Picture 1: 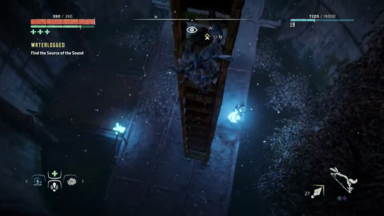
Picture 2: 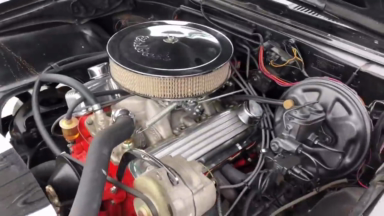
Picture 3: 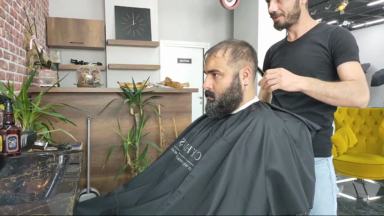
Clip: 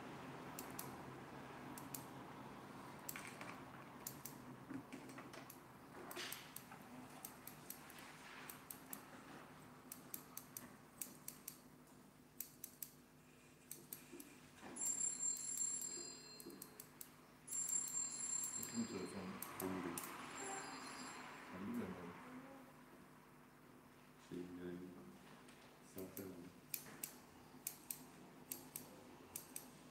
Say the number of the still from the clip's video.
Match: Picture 3